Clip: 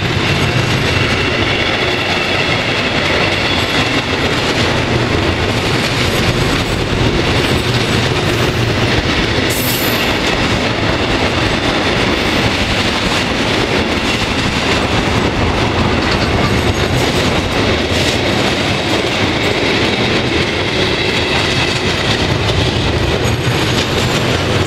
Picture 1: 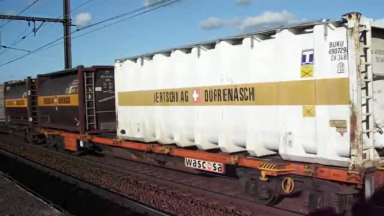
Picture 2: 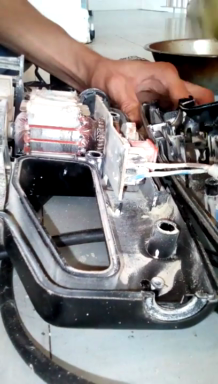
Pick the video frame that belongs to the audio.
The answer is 1